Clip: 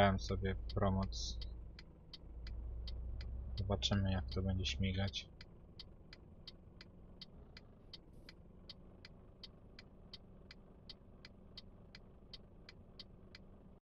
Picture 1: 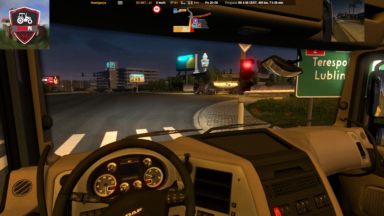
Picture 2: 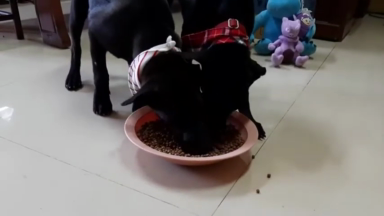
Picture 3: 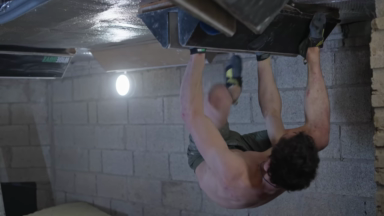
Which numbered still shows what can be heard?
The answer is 1